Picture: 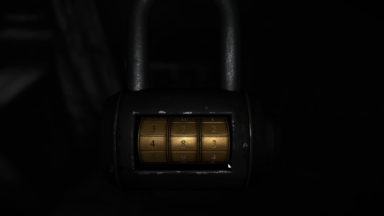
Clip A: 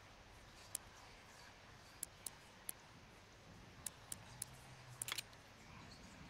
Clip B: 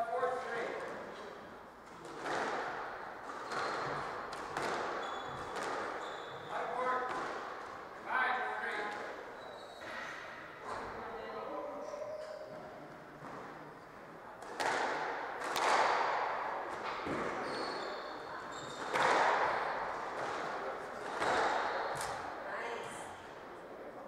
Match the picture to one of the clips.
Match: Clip A